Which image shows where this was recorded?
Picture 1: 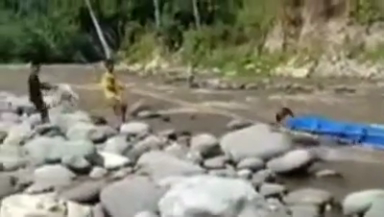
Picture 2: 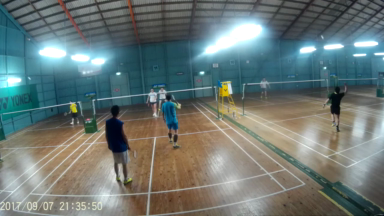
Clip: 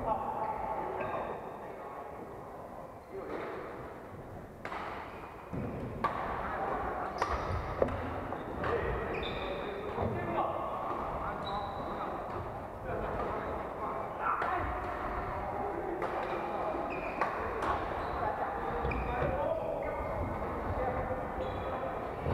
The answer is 2